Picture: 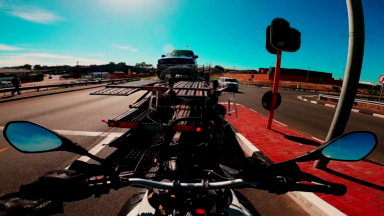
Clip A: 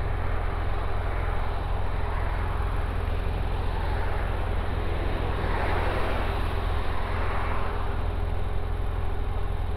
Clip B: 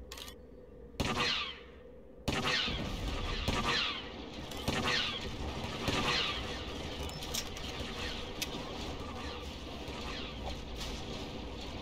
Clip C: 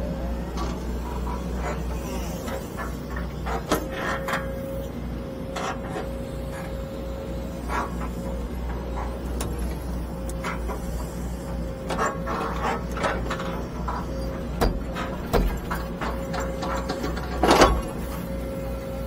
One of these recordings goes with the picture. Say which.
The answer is A